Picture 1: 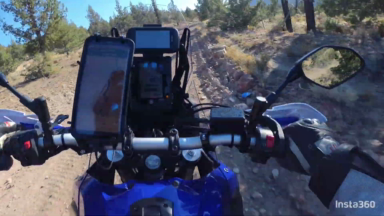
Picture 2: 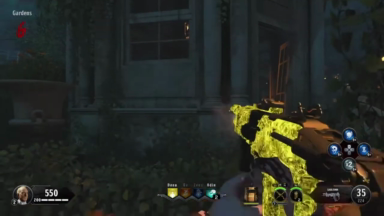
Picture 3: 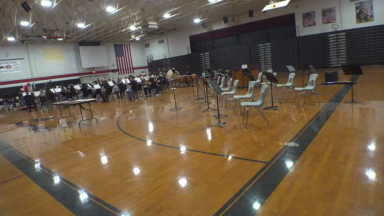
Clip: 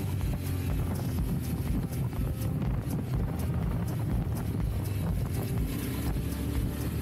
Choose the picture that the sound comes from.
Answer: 1